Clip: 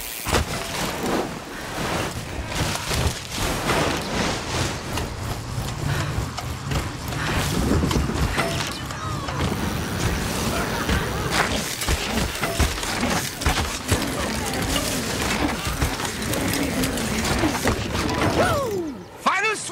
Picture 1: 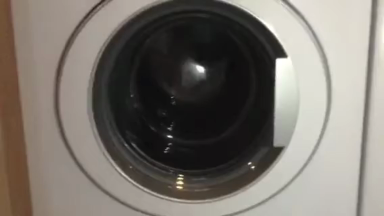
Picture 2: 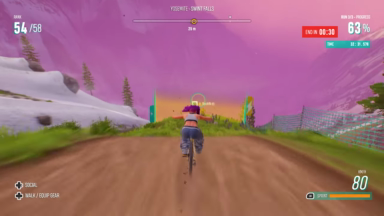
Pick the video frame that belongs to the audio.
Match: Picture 2